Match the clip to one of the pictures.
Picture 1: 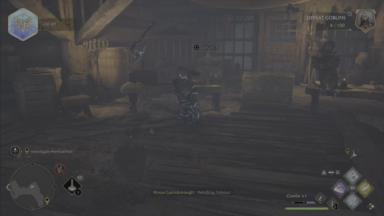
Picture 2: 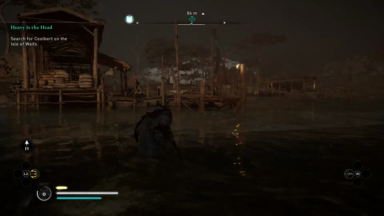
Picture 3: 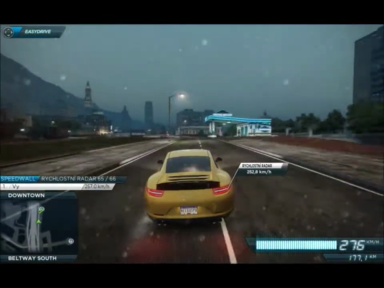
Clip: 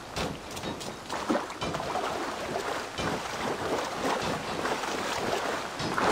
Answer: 2